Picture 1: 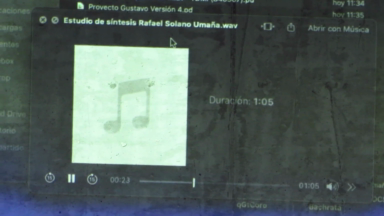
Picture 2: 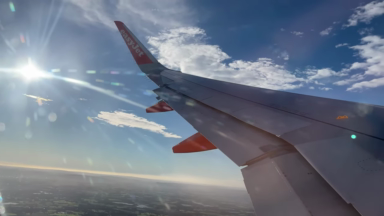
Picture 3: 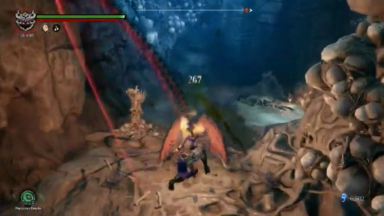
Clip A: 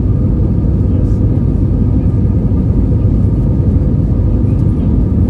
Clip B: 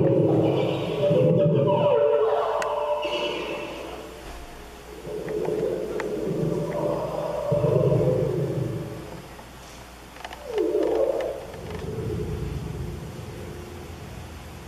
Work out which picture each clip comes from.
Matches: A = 2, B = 1